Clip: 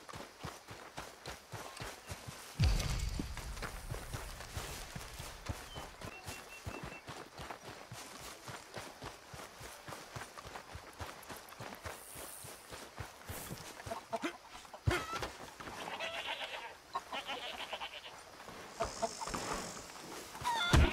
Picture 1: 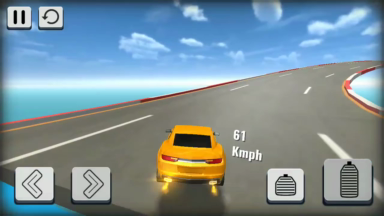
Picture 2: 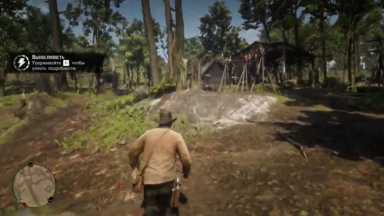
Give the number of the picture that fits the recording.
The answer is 2